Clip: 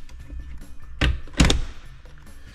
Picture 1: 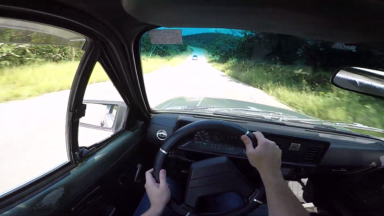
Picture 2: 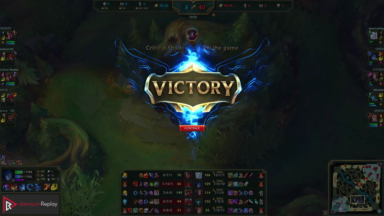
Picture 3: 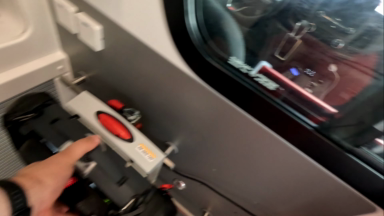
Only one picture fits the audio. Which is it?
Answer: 3